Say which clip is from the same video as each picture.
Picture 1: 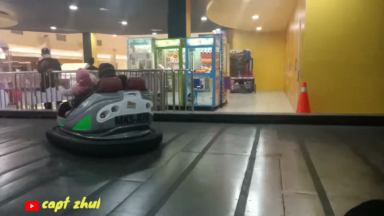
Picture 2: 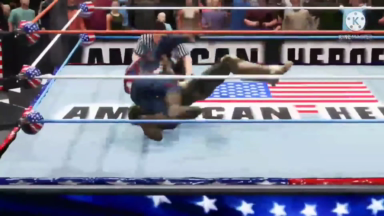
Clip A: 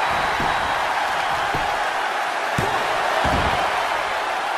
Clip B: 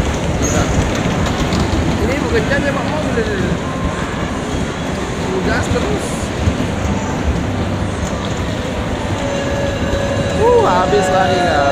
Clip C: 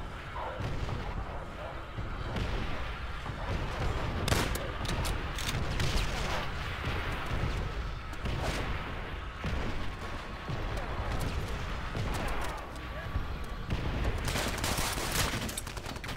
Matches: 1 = B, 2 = A